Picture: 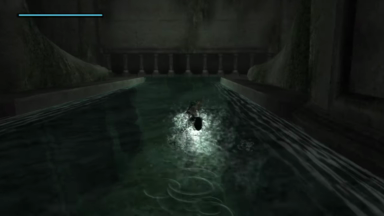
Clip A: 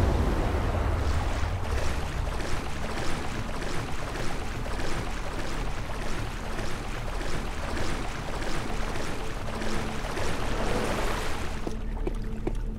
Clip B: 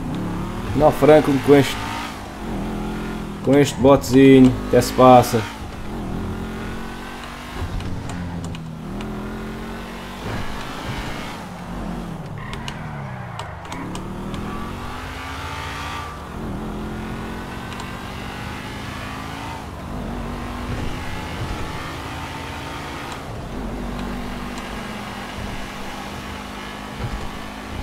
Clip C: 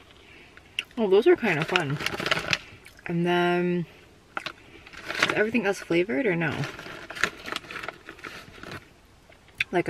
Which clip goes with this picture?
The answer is A